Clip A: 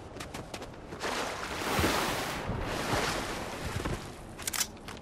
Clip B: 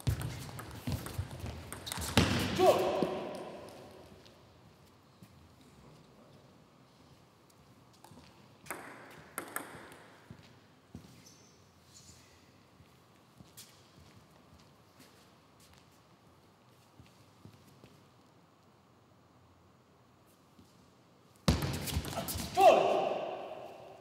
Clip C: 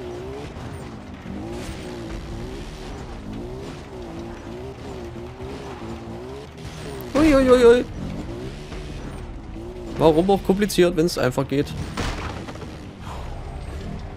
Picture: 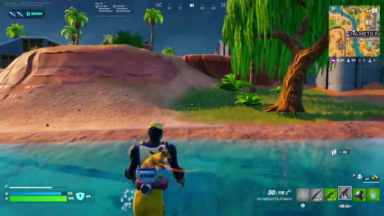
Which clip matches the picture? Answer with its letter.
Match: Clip A